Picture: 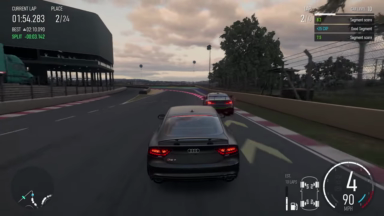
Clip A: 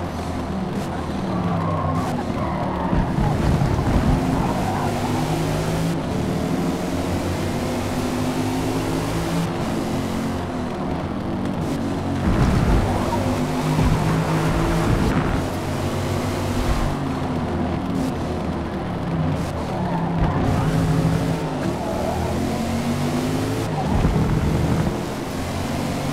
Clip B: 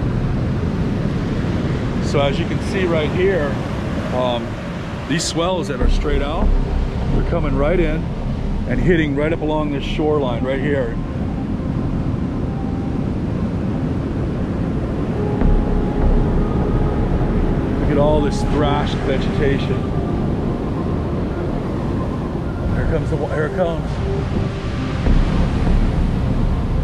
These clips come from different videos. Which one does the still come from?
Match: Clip A